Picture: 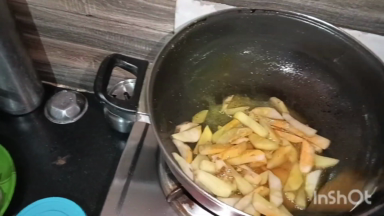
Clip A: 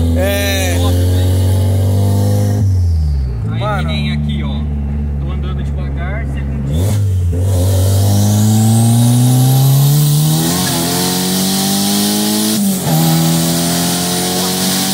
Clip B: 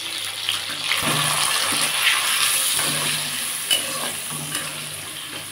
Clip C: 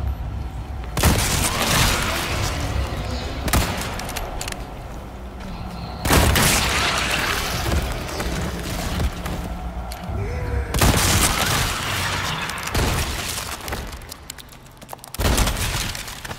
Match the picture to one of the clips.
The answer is B